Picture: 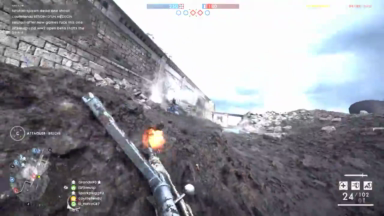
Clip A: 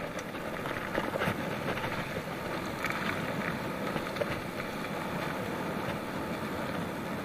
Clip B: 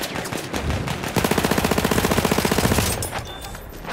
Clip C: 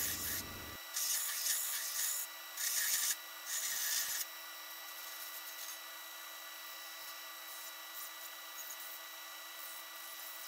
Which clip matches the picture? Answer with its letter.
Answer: B